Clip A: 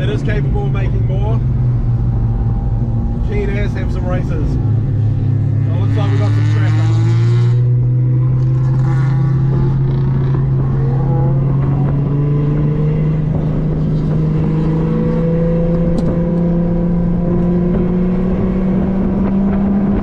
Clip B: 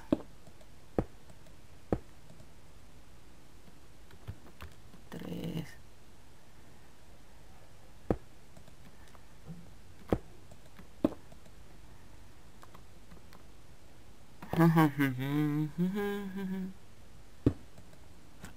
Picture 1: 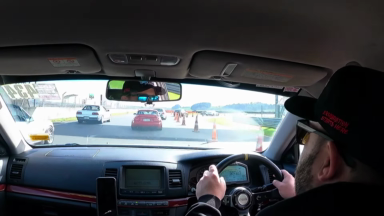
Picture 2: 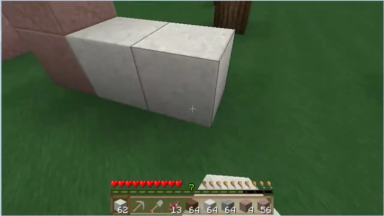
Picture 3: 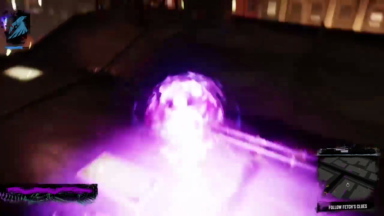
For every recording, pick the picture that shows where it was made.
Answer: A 1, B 2